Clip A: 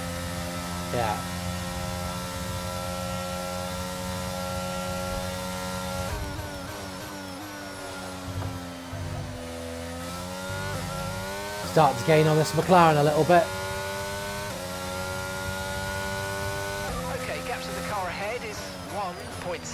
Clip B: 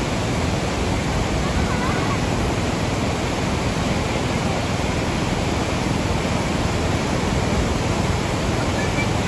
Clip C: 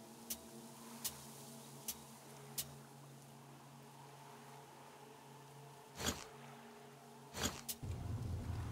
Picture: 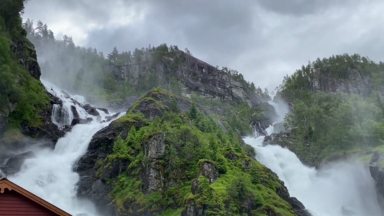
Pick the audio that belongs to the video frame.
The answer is B